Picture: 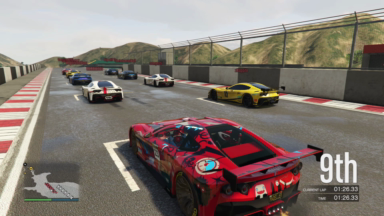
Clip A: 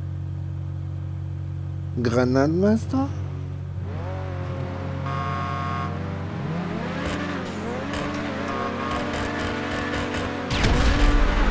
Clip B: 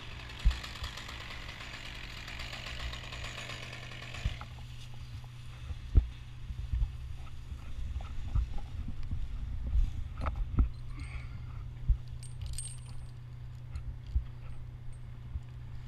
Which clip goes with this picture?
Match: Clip A